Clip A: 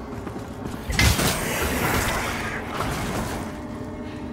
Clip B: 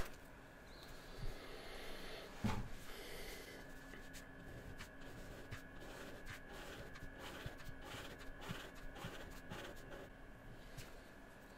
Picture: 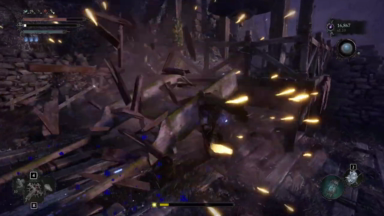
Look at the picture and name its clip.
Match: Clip A